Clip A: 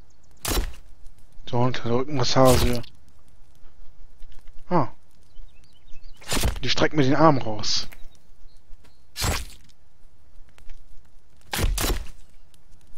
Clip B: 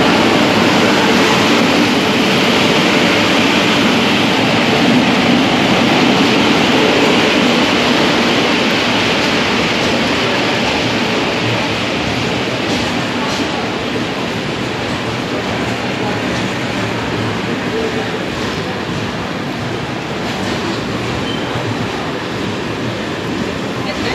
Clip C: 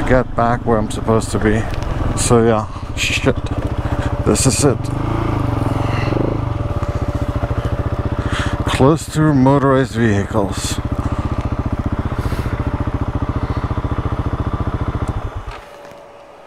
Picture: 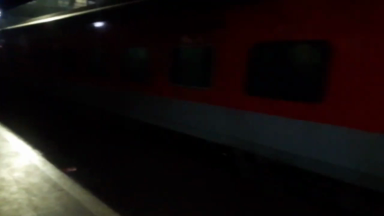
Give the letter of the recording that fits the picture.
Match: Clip B